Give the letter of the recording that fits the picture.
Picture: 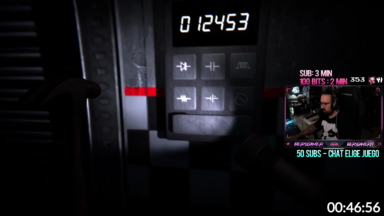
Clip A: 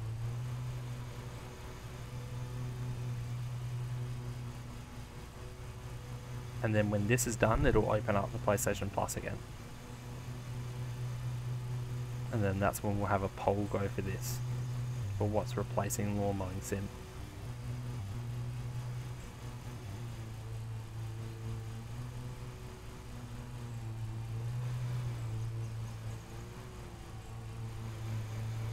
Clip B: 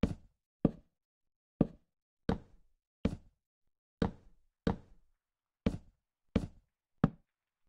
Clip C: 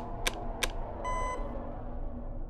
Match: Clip C